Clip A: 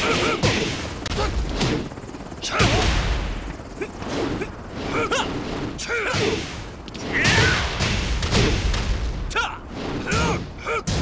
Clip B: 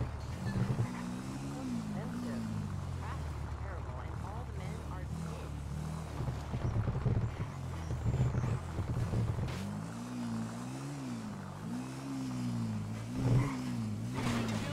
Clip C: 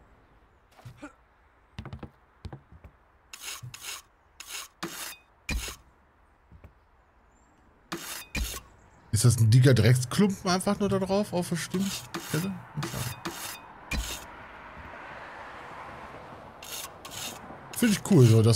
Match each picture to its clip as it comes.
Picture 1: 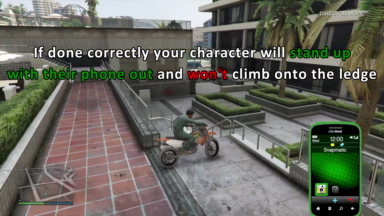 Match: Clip B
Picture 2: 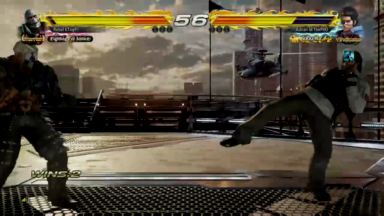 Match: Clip A